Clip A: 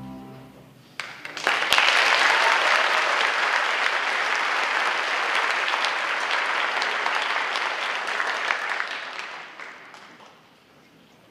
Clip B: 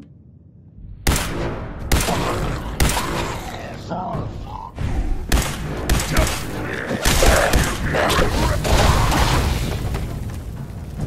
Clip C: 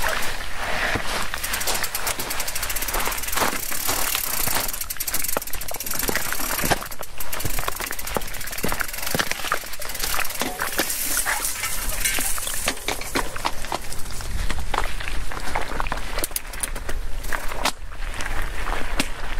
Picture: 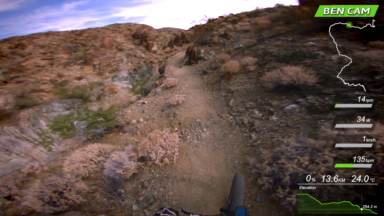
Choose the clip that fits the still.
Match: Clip C